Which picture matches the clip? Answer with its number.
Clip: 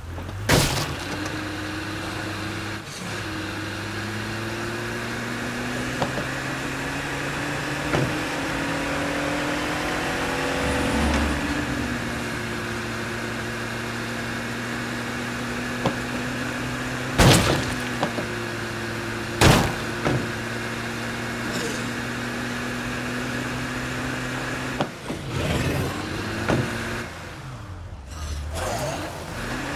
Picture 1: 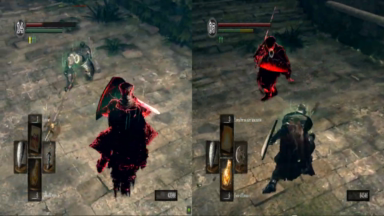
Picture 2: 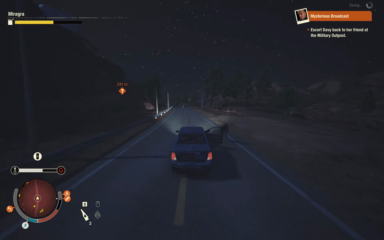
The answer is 2